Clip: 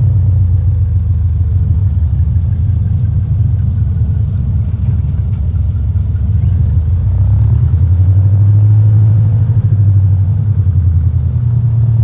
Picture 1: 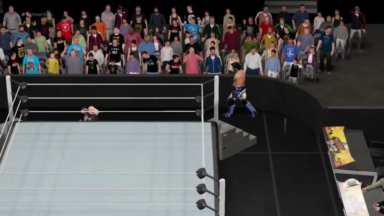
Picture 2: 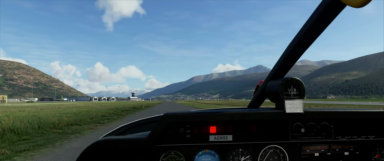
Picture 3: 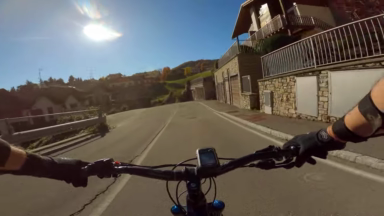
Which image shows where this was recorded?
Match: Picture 2